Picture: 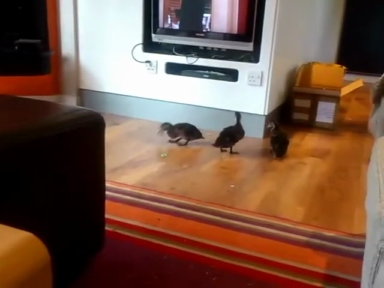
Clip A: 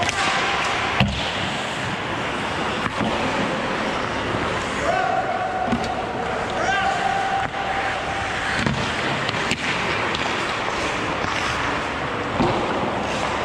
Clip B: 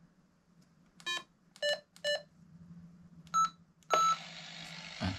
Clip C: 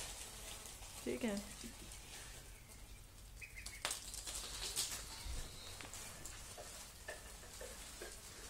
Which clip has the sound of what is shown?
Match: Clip C